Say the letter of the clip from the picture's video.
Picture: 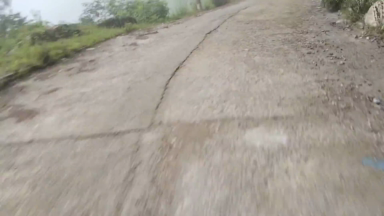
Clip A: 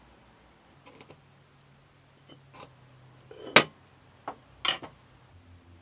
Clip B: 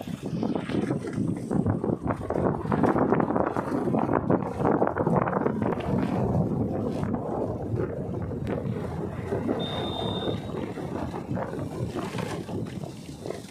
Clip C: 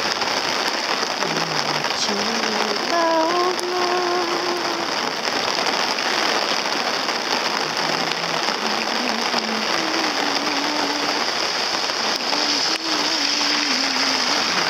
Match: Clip B